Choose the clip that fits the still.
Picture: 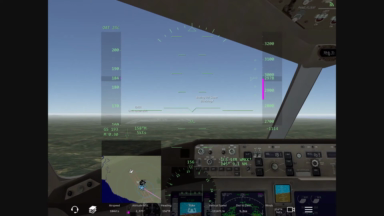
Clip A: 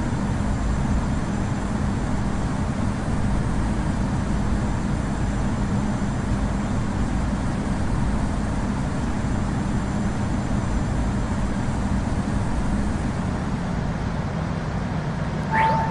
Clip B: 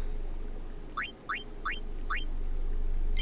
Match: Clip A